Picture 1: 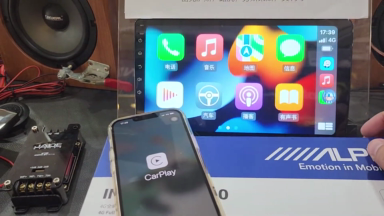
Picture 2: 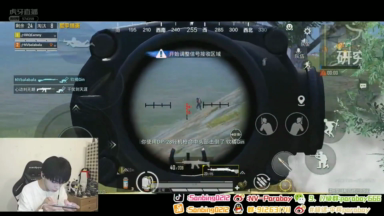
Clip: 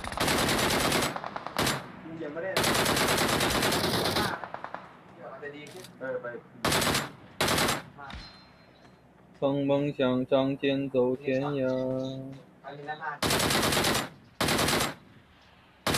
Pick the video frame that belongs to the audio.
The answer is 2